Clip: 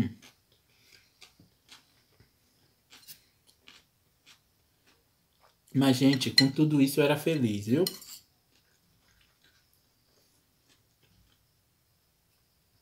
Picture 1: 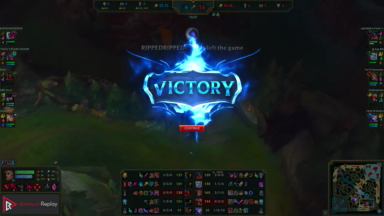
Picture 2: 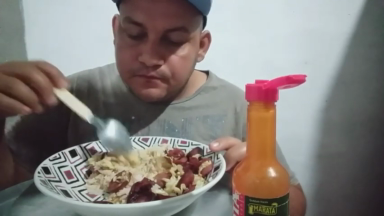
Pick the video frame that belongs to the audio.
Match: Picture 2